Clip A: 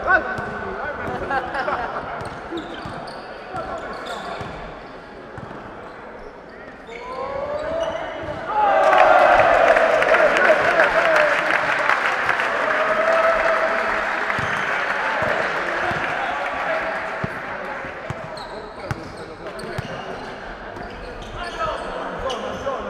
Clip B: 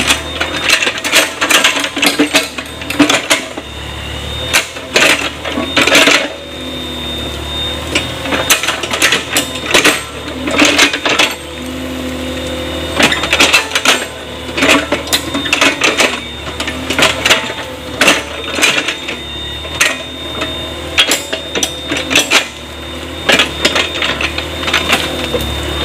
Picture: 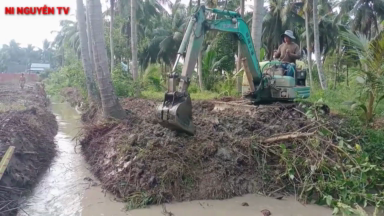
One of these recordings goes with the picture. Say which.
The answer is B